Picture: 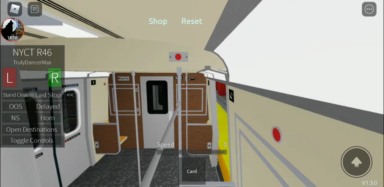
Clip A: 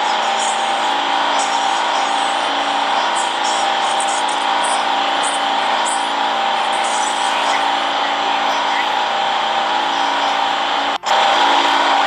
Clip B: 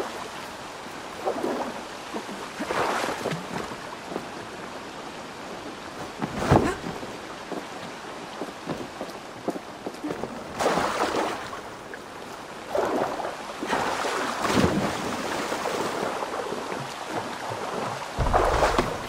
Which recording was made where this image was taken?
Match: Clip A